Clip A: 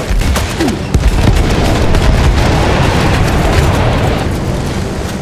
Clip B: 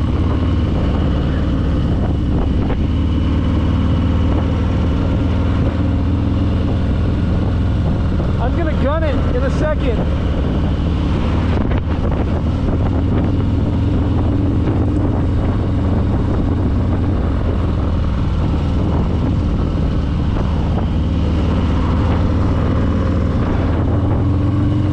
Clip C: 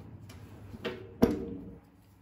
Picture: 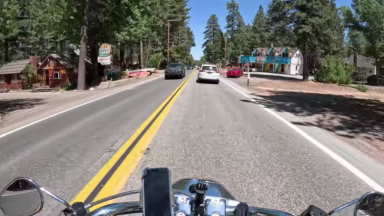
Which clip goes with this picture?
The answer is B